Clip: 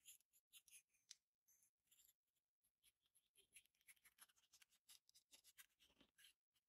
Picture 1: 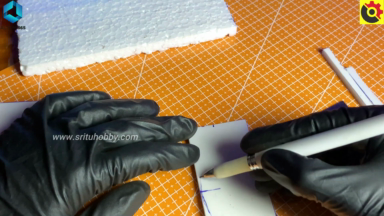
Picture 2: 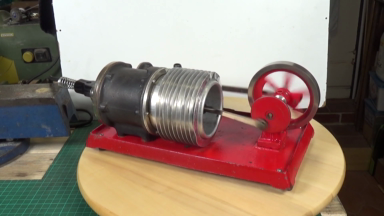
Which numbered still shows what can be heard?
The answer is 1